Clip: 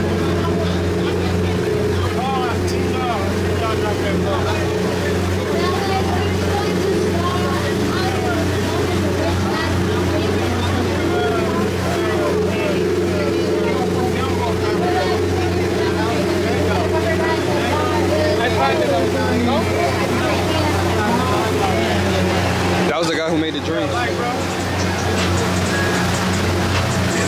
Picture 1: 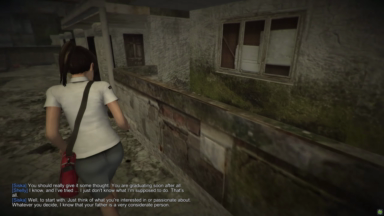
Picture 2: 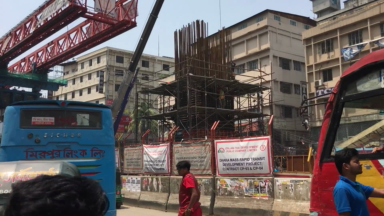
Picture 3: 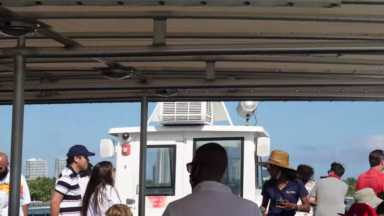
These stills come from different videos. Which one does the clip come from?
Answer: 3